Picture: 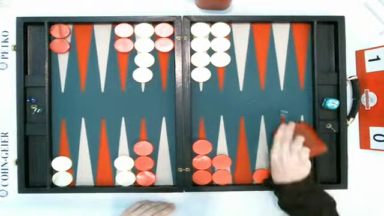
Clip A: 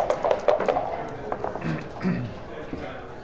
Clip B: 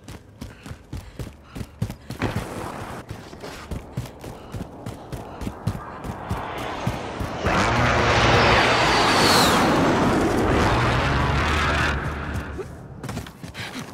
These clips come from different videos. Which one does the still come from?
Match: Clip A